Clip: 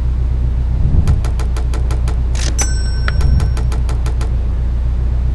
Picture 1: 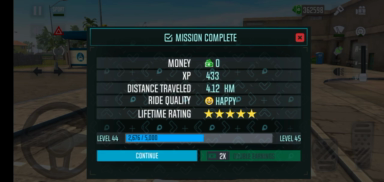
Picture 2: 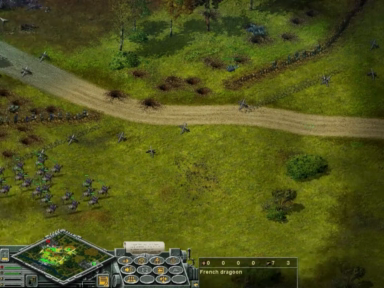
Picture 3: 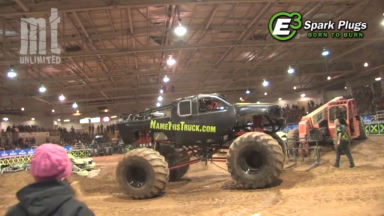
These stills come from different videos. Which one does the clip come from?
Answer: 1